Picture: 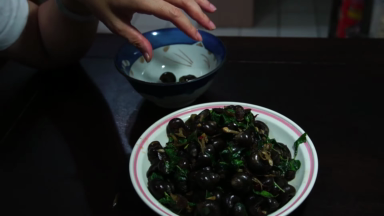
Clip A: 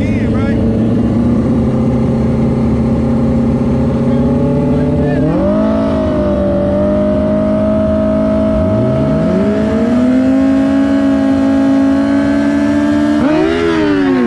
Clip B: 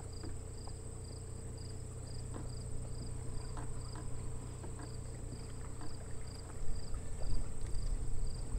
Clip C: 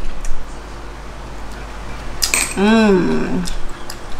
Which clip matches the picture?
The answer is C